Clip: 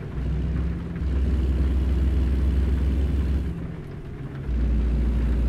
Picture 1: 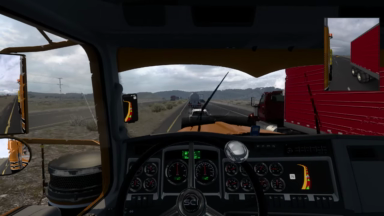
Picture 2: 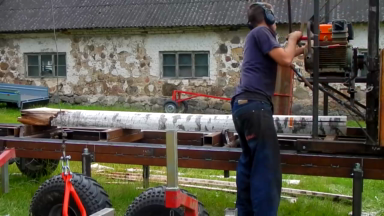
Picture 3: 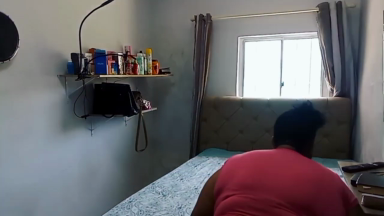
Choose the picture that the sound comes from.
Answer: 1